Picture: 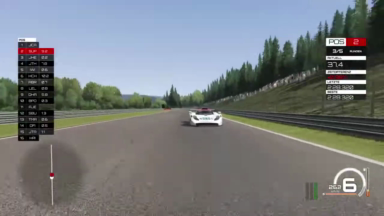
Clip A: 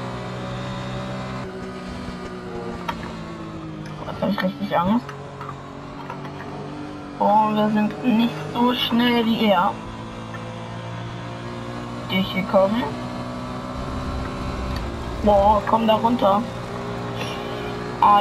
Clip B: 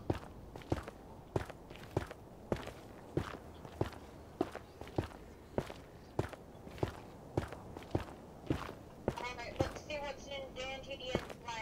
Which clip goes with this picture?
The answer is A